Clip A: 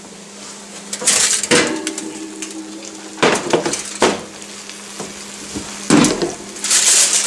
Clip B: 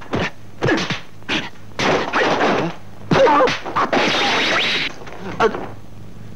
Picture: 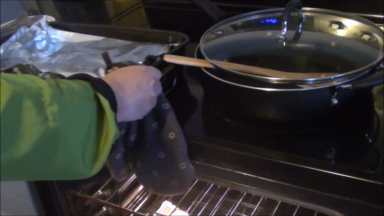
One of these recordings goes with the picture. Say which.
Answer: A